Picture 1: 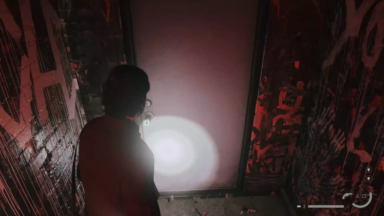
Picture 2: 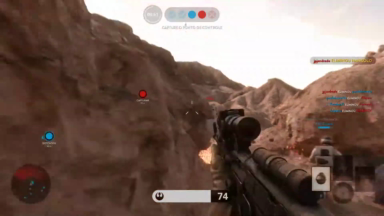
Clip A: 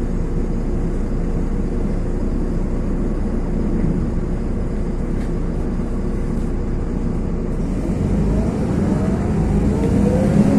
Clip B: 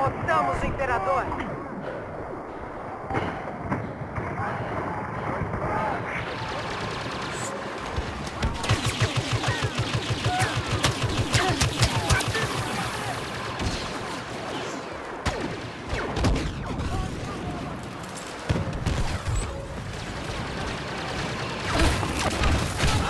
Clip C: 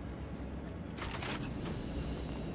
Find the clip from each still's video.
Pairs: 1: C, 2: B